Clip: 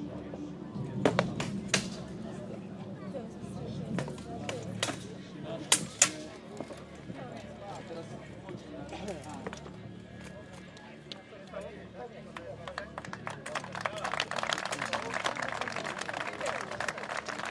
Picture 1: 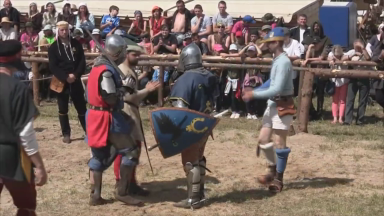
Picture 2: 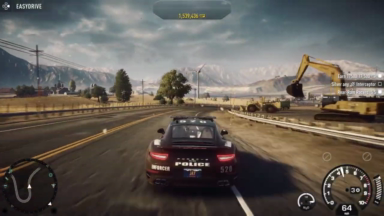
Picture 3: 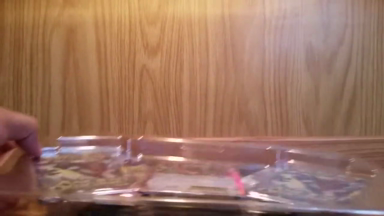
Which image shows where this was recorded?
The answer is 1